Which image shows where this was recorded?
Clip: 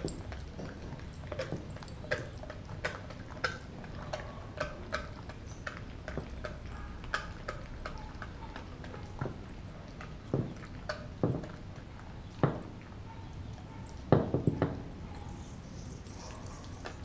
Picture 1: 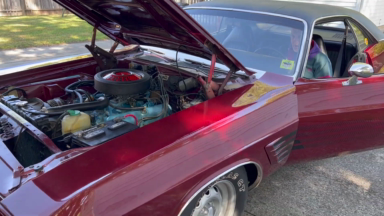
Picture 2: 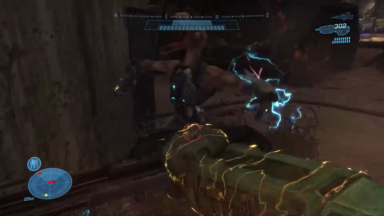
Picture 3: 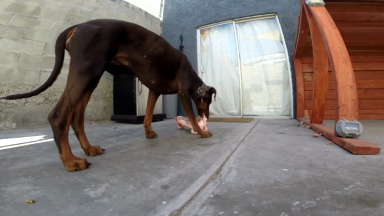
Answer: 3